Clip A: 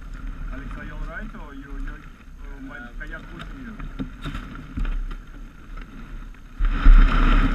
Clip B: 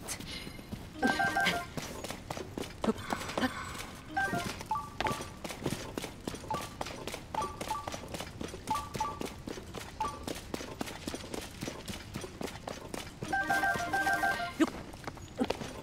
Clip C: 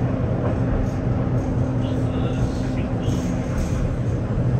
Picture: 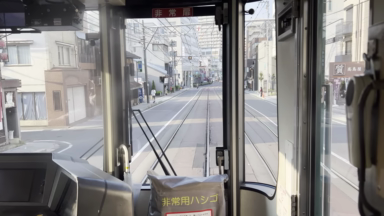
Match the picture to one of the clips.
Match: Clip C